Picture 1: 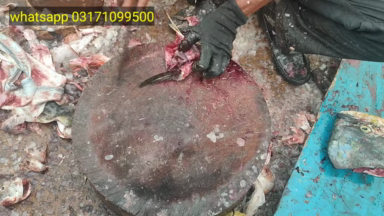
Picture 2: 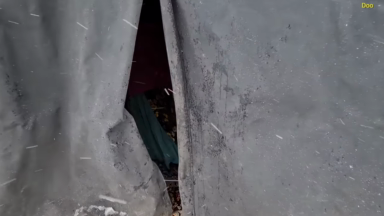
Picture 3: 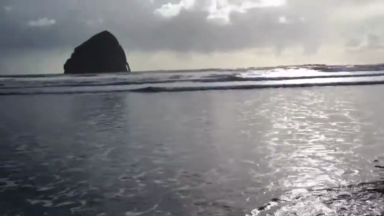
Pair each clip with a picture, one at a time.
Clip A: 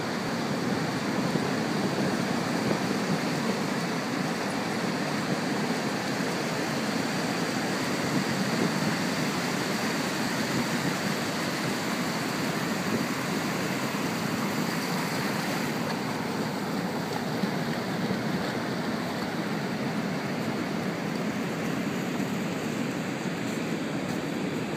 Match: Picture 3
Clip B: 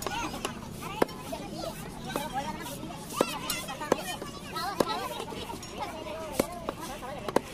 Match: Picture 1